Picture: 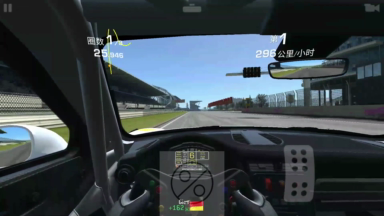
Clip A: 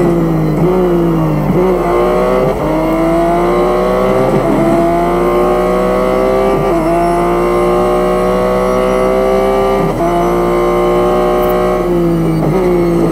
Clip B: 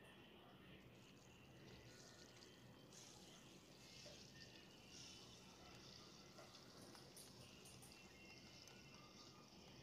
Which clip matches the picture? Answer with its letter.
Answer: A